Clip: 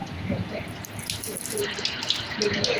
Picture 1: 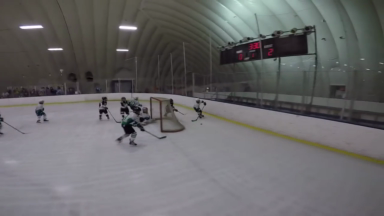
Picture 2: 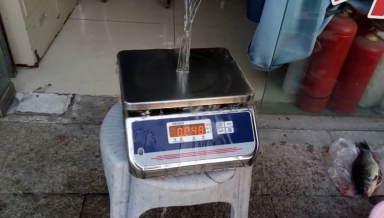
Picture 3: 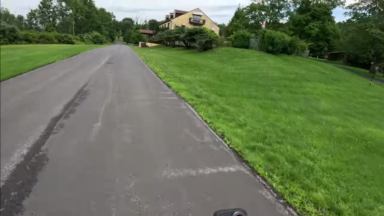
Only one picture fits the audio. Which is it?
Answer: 2